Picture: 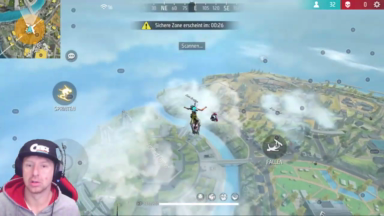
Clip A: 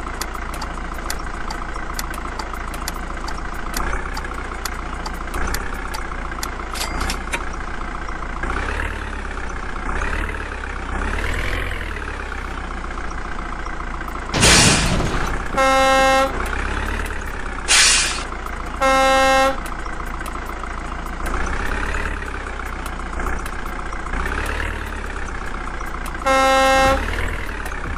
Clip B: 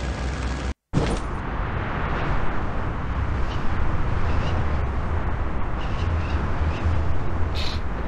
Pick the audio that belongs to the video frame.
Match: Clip B